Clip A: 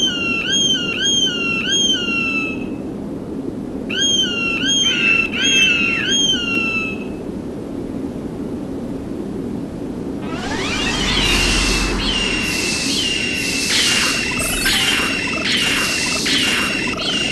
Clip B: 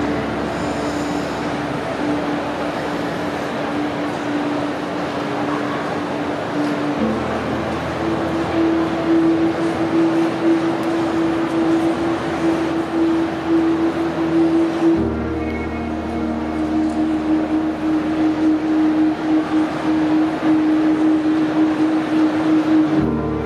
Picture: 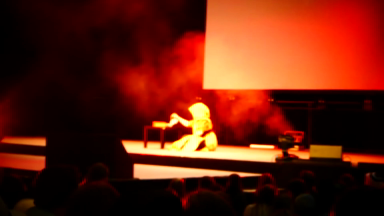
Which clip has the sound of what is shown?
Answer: B